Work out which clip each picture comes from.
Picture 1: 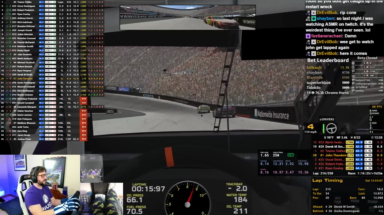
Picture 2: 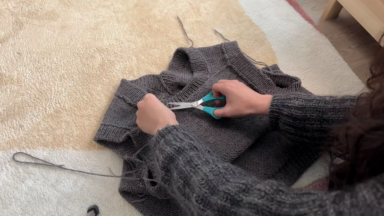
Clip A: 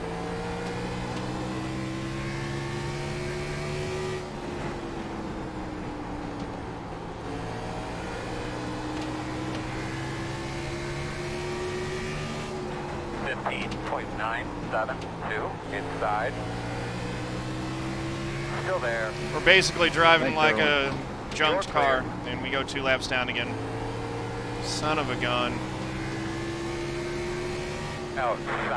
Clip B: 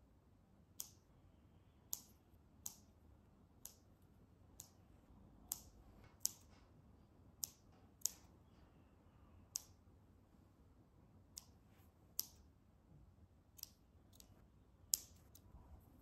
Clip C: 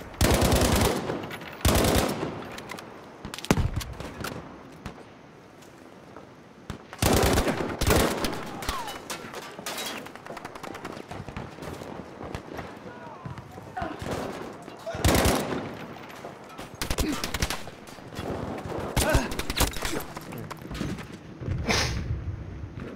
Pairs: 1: A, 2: B